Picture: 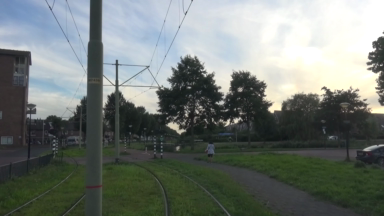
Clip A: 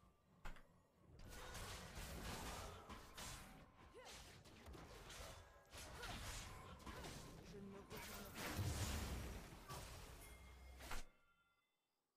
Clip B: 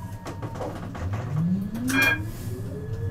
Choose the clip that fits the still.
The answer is B